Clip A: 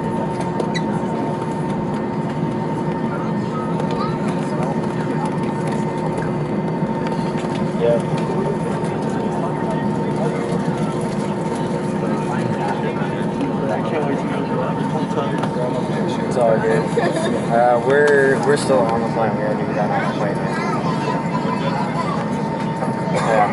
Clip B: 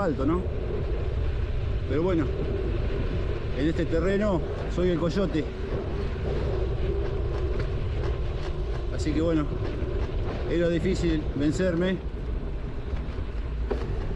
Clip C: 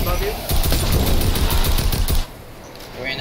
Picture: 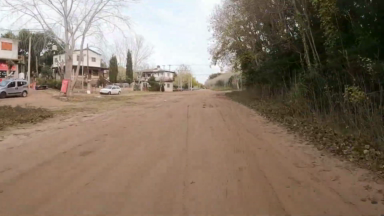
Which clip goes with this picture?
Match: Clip B